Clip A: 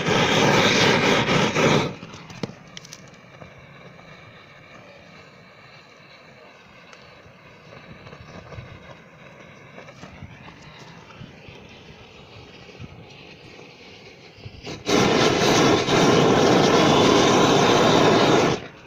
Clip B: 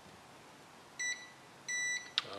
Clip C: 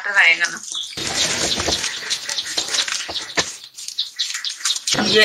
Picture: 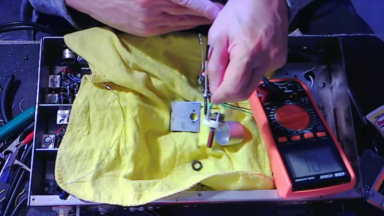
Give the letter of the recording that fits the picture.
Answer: B